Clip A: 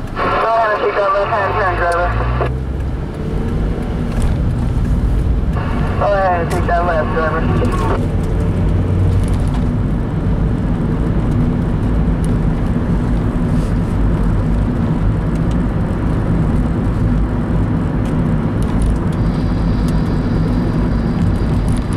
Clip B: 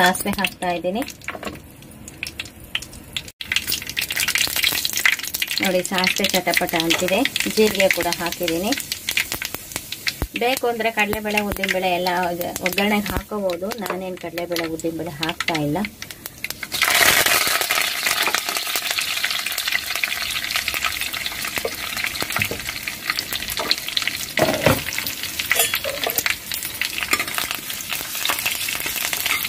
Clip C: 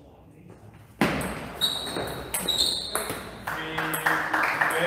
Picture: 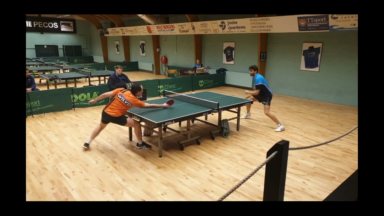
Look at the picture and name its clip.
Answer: C